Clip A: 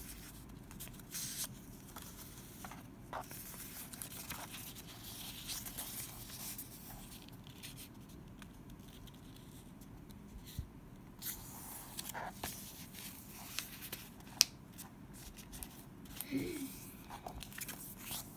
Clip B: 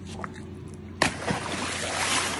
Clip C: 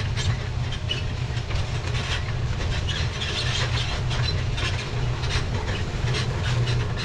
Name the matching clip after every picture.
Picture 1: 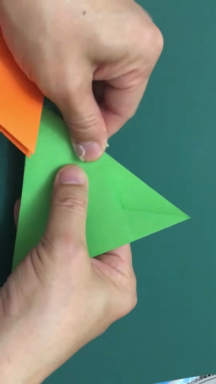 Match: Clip A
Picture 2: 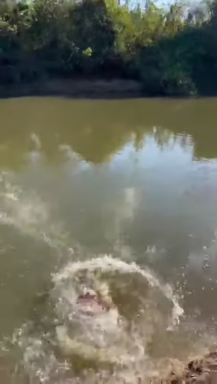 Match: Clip B